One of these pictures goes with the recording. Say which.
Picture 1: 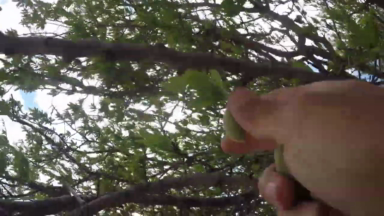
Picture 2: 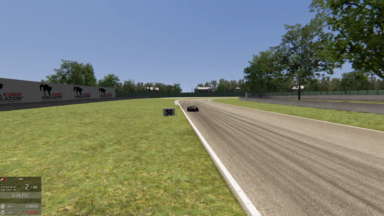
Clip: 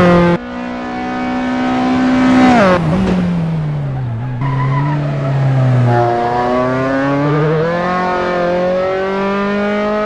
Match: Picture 2